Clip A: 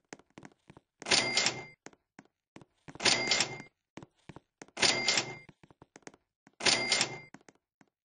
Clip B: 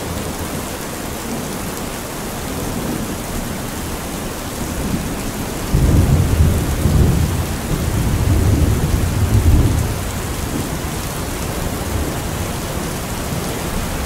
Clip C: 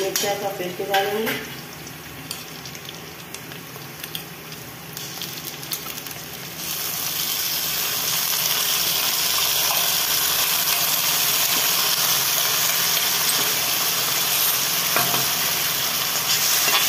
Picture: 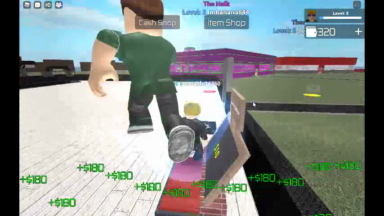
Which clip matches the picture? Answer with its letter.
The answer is A